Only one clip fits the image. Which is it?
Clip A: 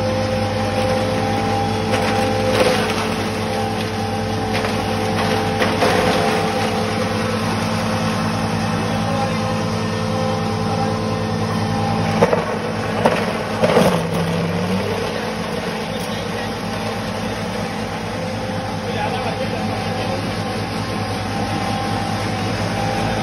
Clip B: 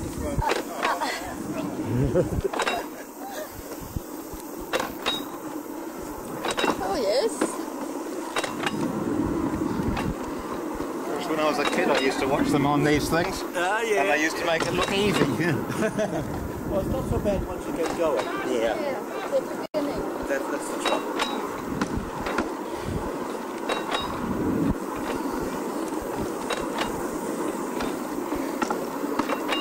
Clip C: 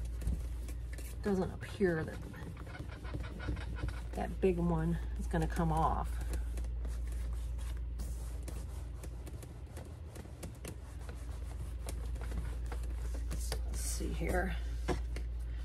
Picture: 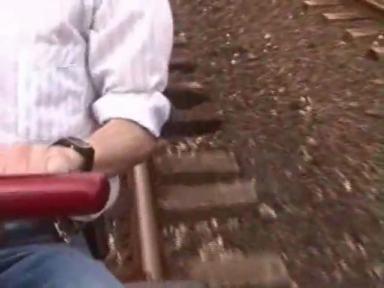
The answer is B